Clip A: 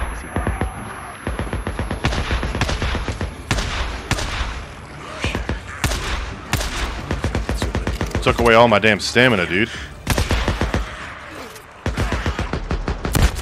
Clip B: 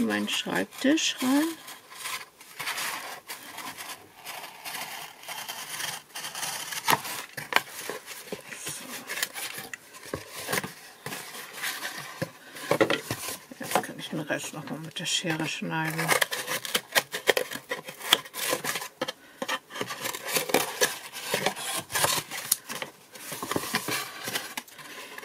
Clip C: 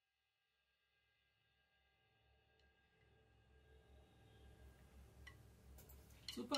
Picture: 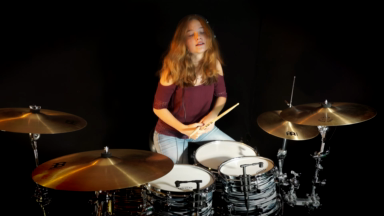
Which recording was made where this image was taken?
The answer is C